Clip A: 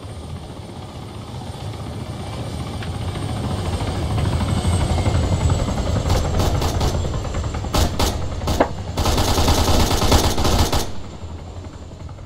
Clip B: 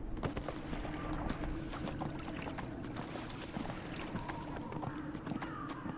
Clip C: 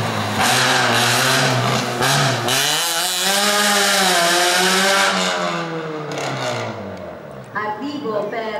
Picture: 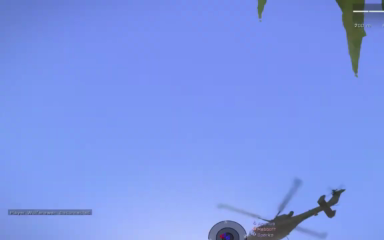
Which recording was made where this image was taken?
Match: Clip A